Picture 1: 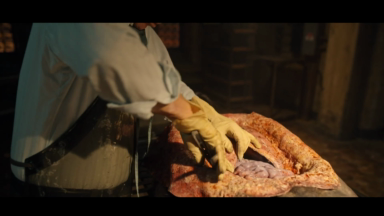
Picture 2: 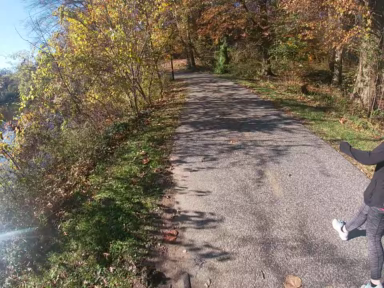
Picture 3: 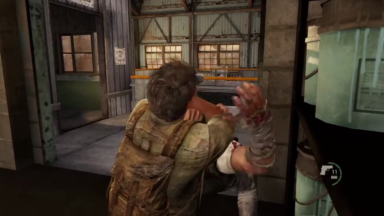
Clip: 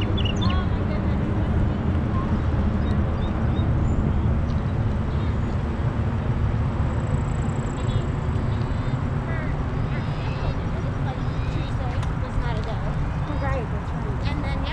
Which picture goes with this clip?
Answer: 2